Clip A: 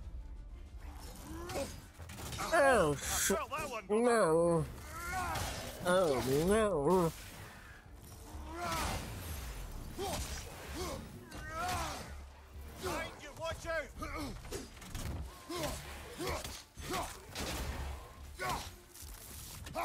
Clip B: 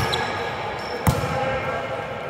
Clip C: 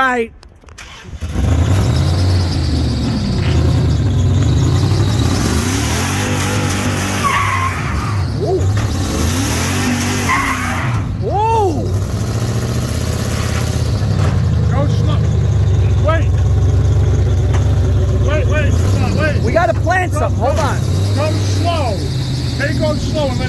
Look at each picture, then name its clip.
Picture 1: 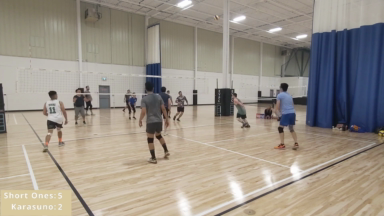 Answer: B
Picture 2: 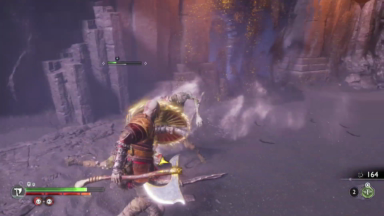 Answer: A